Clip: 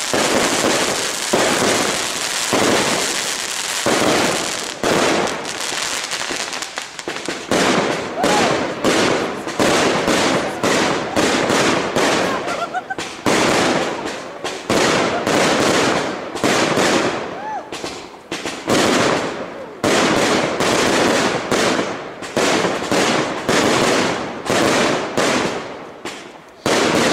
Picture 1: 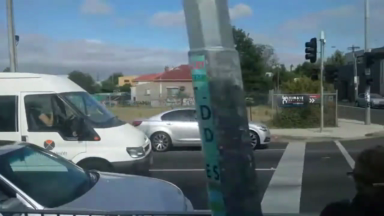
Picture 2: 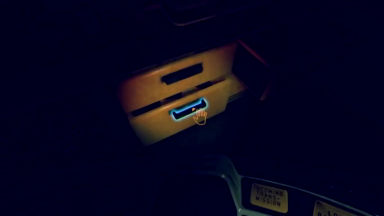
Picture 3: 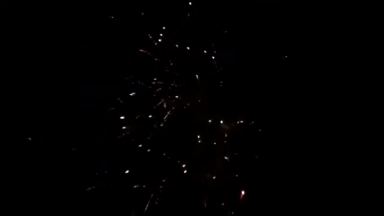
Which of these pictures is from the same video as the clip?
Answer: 3